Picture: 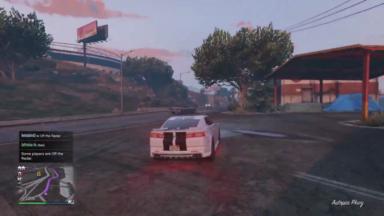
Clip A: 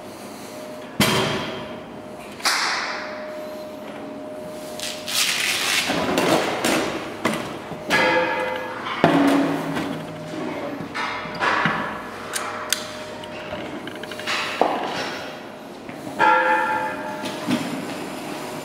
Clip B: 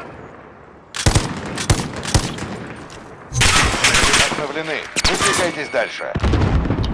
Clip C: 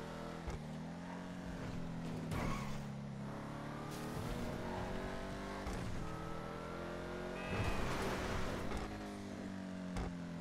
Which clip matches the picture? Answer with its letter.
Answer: C